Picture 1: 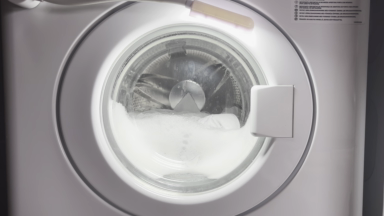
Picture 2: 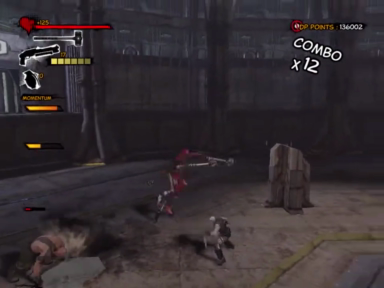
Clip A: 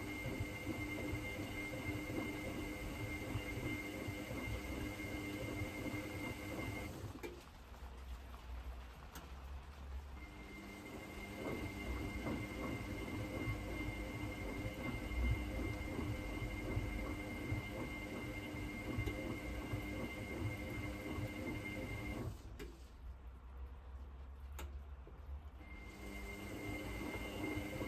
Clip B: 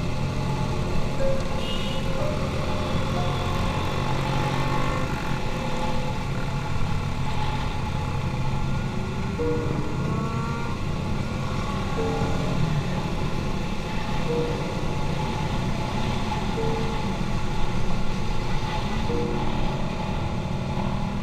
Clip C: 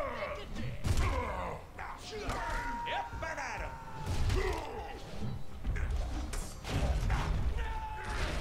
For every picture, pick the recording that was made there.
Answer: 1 A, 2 C